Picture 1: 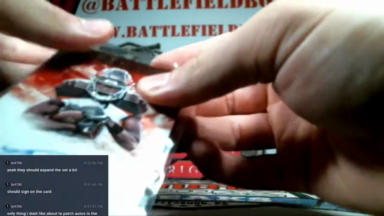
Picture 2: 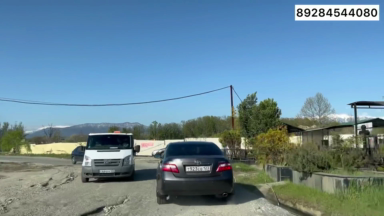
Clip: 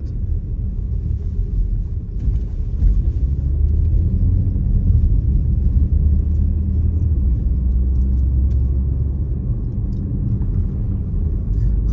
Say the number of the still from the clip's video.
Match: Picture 2